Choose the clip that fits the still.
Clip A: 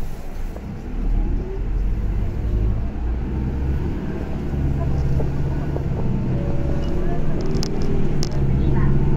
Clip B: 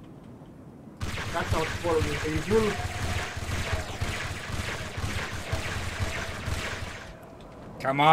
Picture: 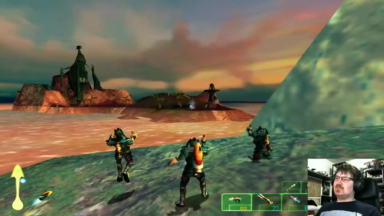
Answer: B